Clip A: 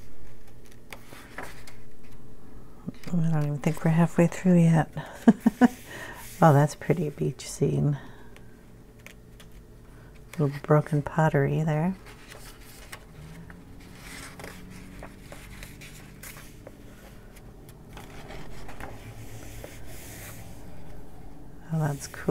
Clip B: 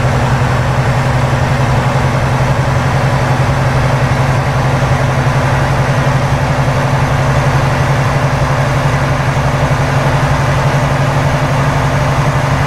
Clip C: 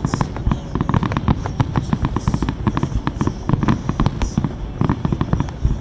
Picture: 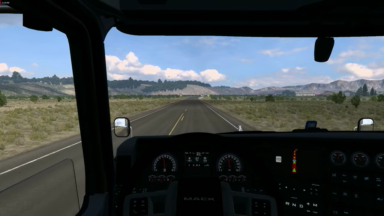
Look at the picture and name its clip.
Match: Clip B